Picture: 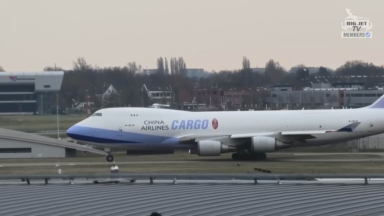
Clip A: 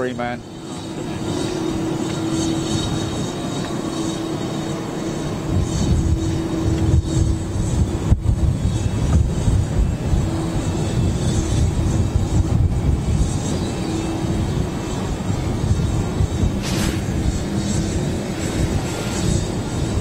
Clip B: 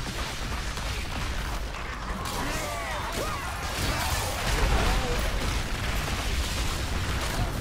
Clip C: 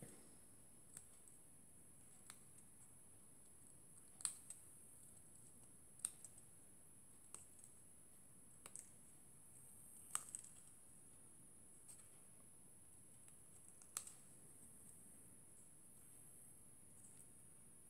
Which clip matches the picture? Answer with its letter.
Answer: A